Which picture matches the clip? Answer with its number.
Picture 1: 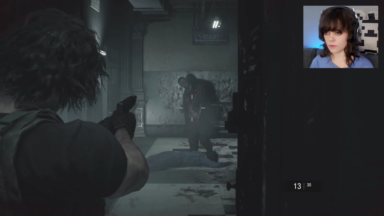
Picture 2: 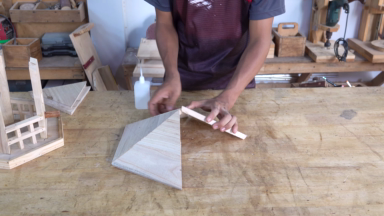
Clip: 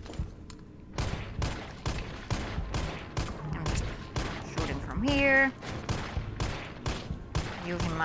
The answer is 1